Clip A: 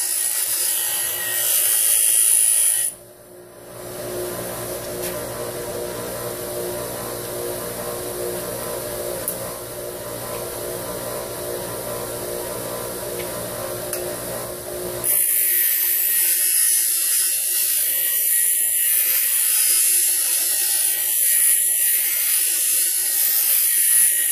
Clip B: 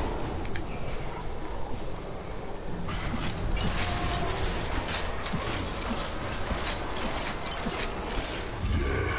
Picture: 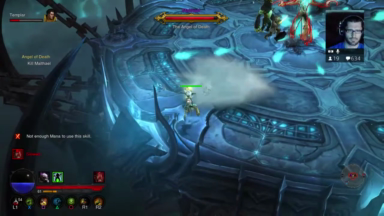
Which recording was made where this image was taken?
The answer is B